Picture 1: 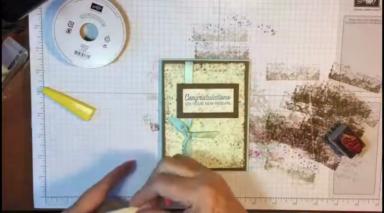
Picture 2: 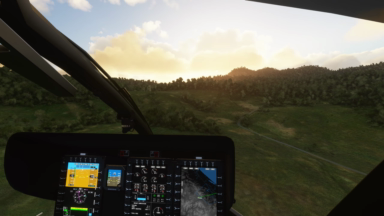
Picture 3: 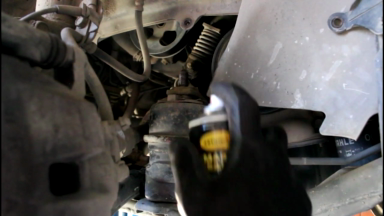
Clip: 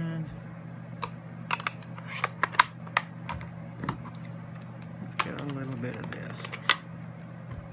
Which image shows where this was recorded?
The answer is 1